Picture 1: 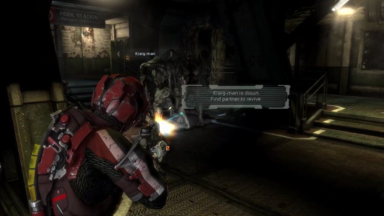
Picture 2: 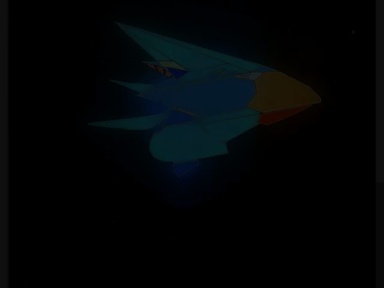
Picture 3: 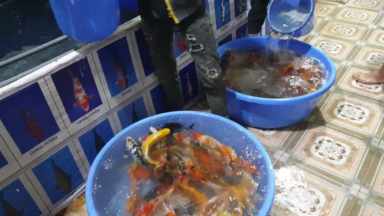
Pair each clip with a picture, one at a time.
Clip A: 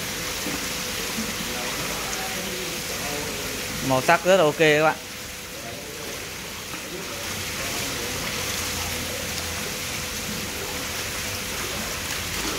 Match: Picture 3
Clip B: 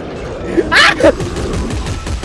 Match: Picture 1